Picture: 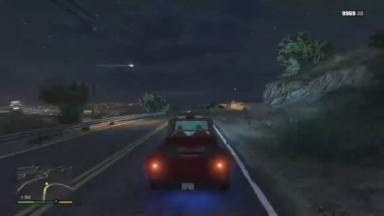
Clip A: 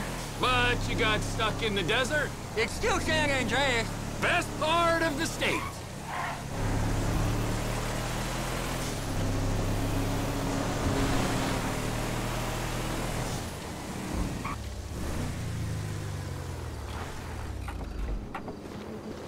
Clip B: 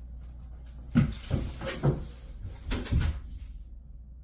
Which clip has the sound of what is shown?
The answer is A